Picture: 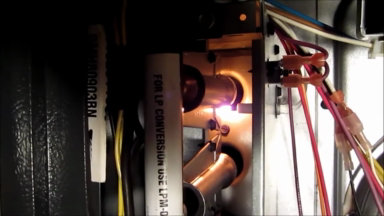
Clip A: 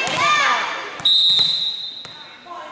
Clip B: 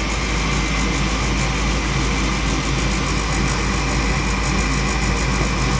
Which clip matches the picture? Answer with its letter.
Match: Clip B